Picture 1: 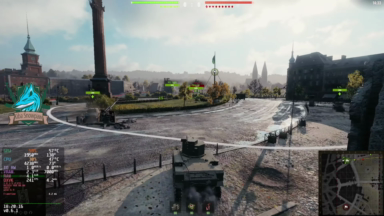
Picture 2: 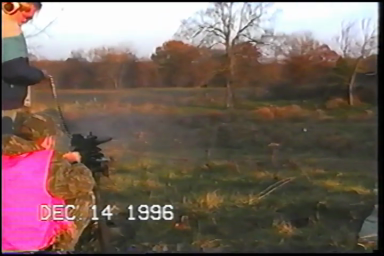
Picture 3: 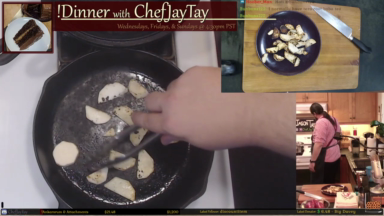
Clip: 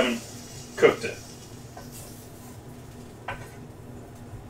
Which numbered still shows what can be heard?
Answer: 3